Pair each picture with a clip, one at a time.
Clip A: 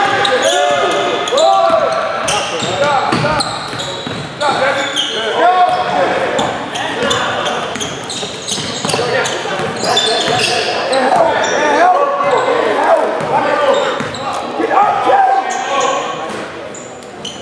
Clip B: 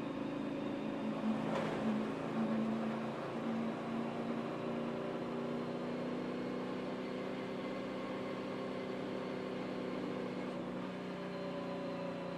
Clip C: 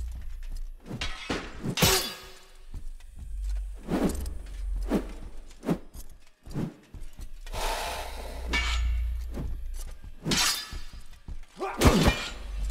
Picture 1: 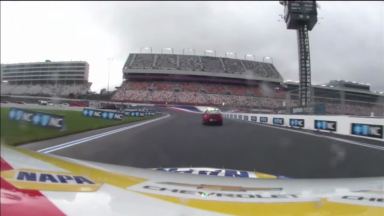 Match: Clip B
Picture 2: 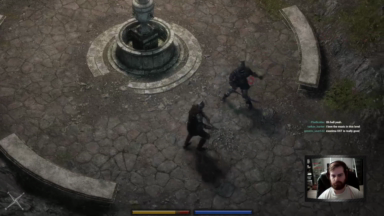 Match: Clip C